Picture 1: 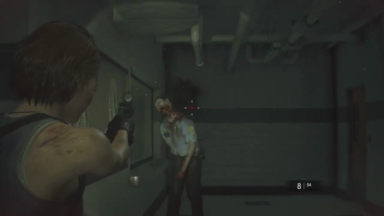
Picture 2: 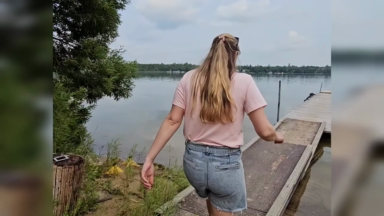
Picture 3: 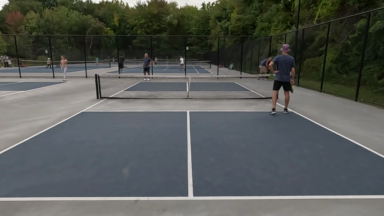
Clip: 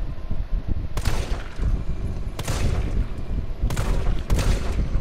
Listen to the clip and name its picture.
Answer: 1